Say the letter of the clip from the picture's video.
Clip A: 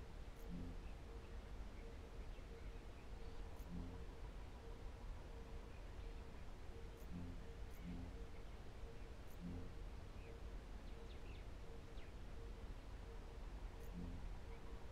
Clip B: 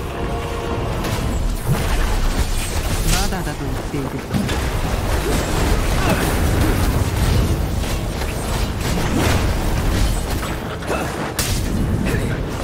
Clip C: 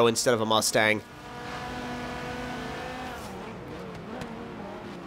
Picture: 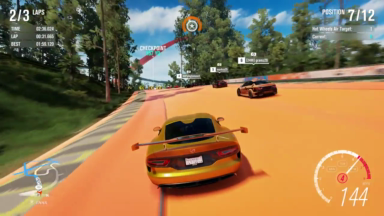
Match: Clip C